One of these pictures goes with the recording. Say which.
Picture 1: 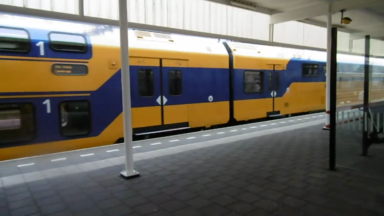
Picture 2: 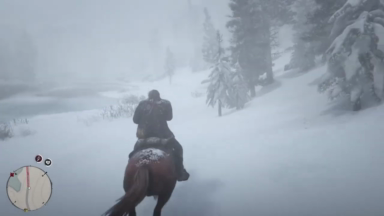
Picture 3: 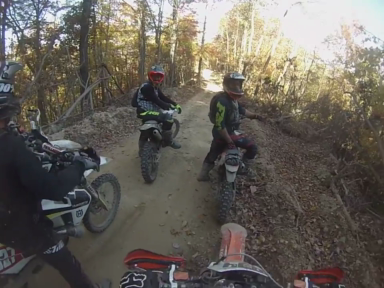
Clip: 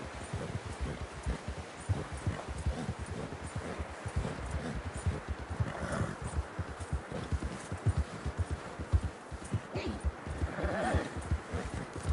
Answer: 2